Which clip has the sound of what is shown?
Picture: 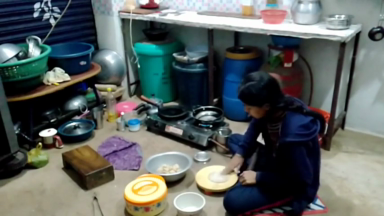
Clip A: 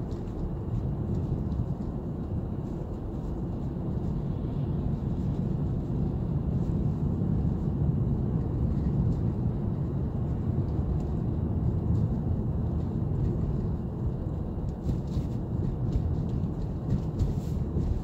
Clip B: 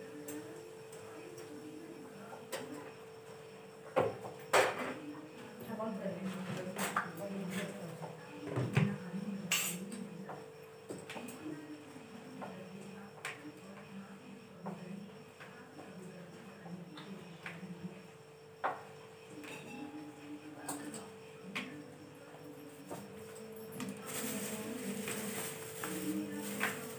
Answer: B